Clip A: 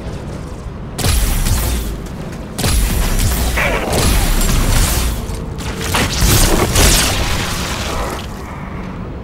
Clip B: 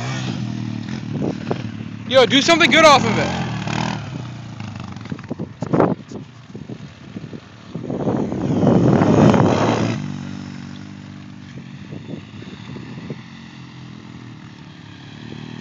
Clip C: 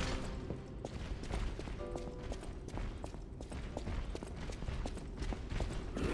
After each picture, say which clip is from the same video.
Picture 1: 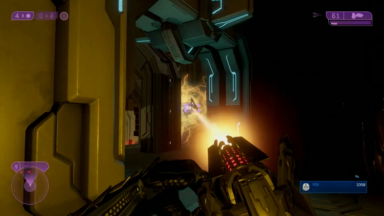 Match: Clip A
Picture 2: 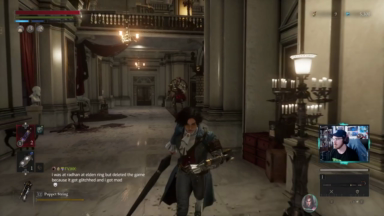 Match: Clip C